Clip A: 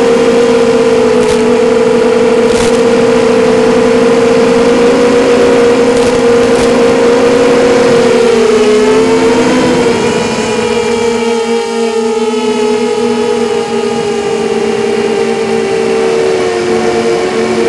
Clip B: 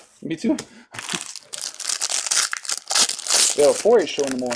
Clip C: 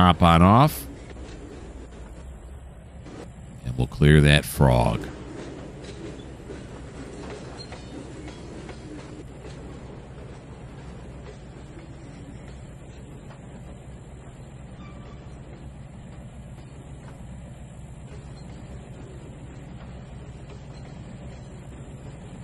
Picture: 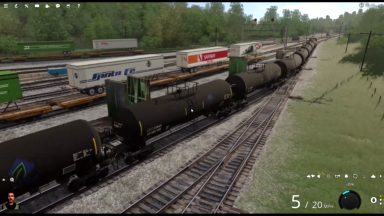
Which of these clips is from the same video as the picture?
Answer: C